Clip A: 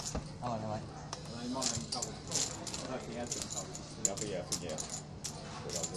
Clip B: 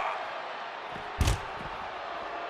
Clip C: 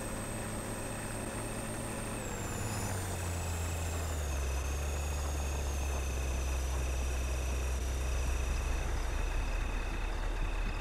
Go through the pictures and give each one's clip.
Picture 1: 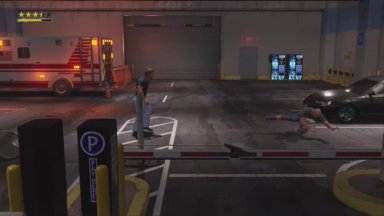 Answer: B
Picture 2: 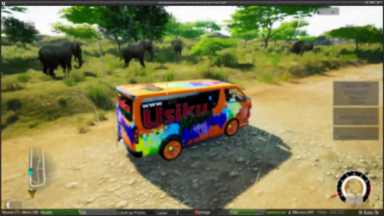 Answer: C